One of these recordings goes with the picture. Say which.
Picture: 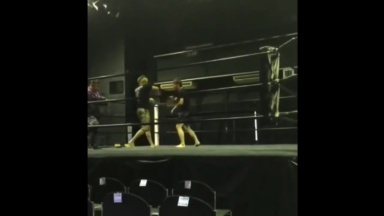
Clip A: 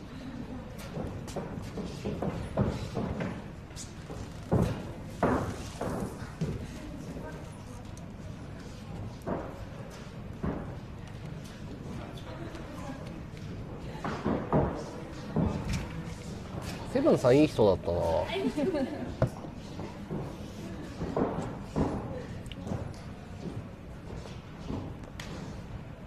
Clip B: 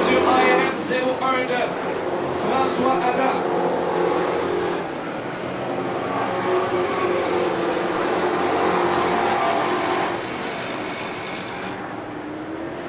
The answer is A